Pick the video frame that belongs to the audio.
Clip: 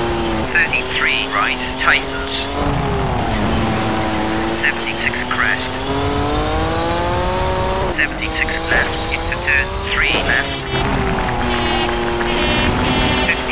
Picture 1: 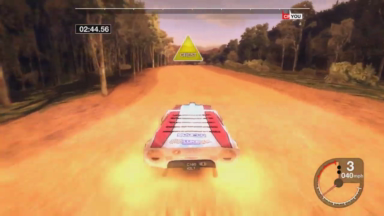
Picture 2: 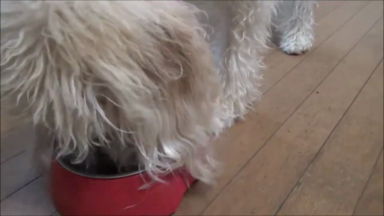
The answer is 1